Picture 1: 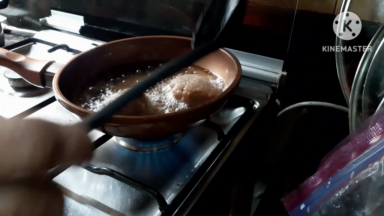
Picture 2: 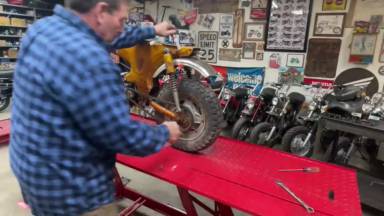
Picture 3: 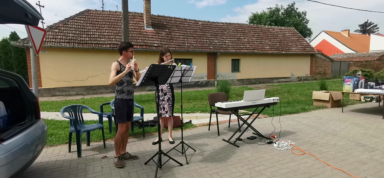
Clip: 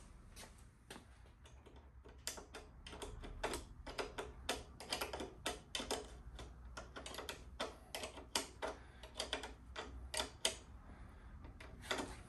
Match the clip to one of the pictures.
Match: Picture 2